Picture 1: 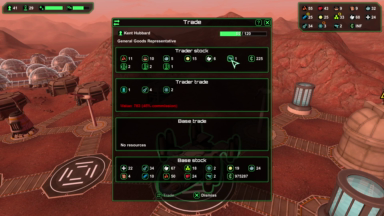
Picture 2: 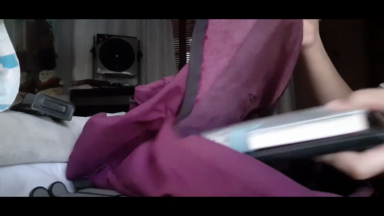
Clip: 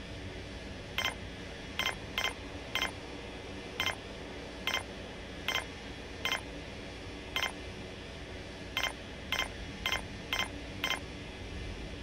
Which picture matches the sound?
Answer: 1